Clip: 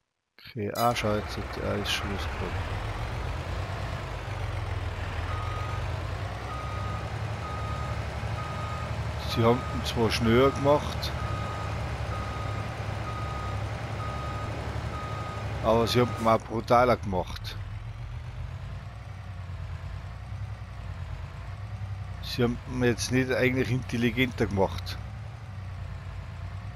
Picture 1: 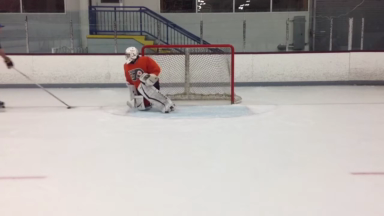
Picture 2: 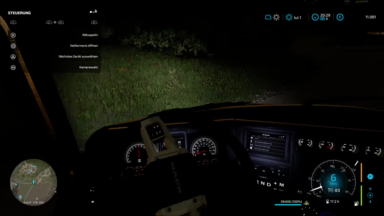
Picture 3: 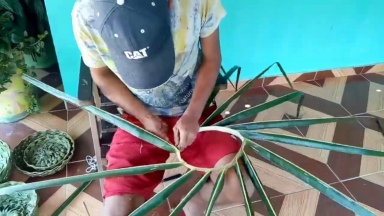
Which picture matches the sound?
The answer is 2